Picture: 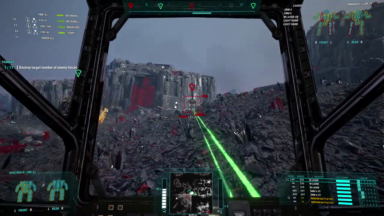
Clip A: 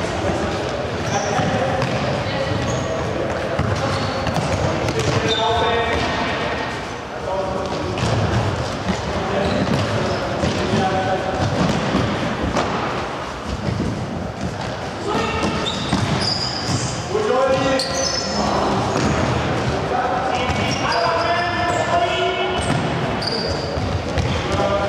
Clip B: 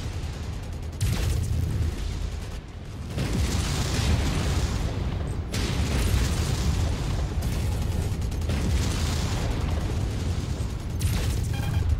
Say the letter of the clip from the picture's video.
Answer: B